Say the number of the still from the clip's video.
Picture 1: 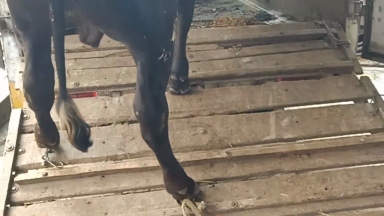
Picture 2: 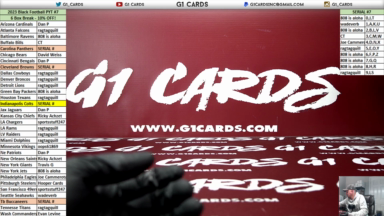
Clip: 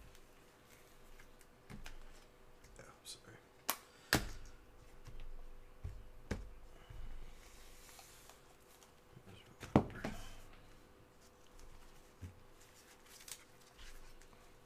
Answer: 2